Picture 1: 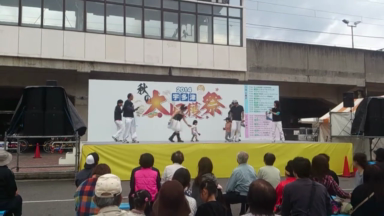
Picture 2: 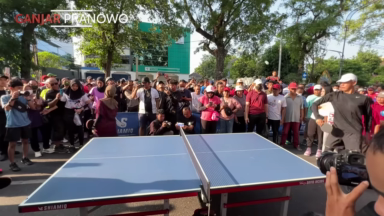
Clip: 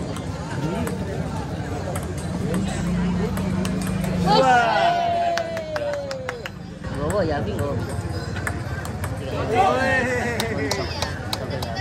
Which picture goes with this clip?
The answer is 2